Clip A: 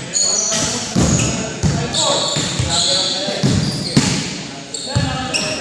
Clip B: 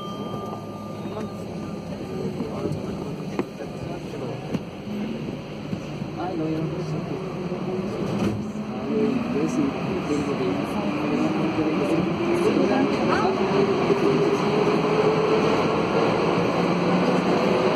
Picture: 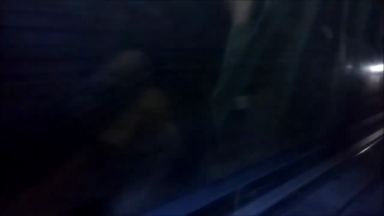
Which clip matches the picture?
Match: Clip B